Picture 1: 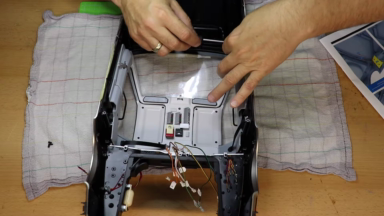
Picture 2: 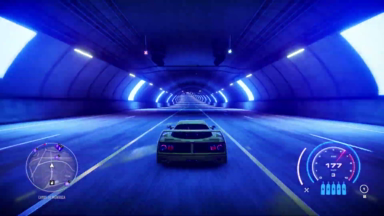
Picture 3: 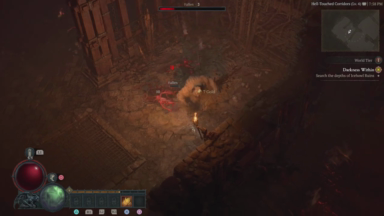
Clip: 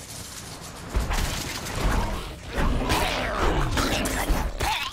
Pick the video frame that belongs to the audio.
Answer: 3